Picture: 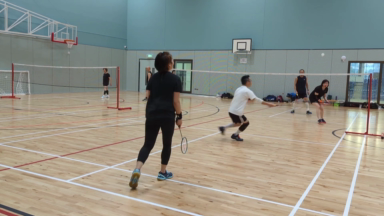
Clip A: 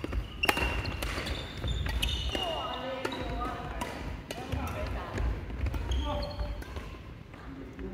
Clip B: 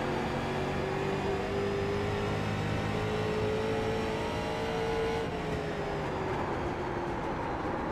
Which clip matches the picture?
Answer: A